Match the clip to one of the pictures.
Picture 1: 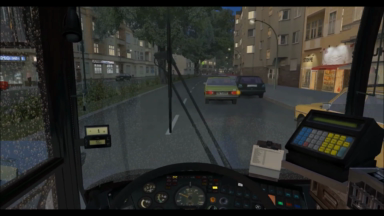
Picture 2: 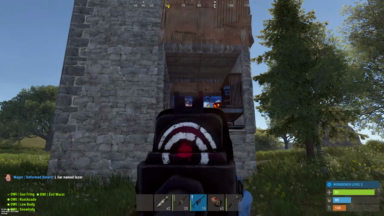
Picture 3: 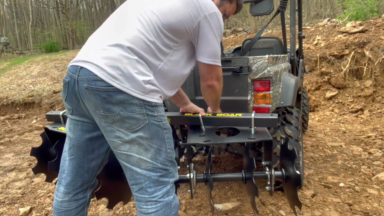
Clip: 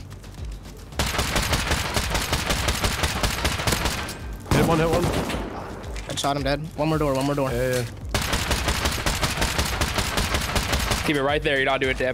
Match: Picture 2